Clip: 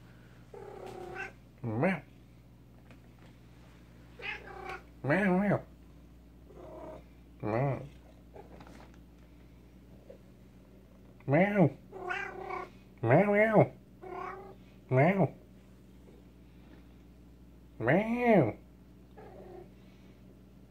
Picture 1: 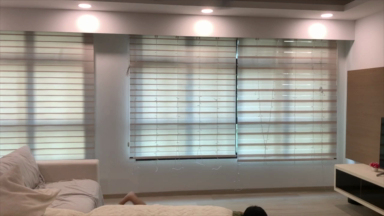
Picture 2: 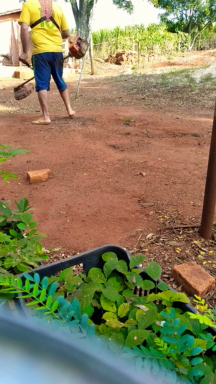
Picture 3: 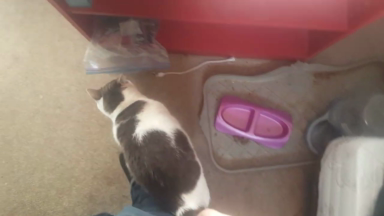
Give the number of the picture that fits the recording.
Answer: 3